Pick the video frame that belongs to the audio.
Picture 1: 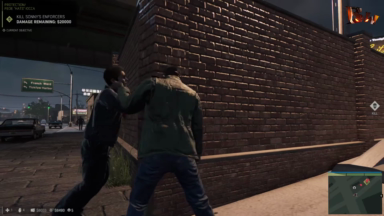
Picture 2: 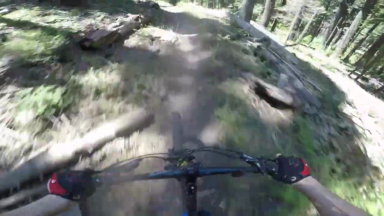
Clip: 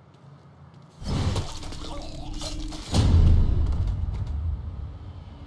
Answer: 1